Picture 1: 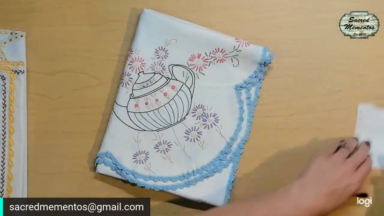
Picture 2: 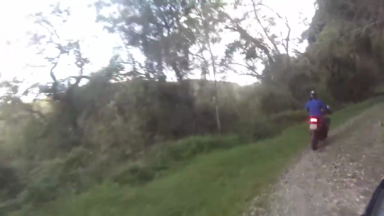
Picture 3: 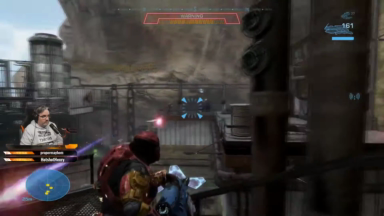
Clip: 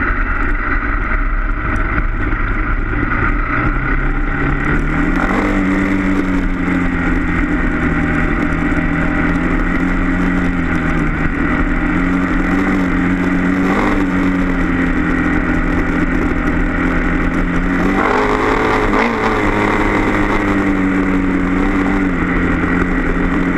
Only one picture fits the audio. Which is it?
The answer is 2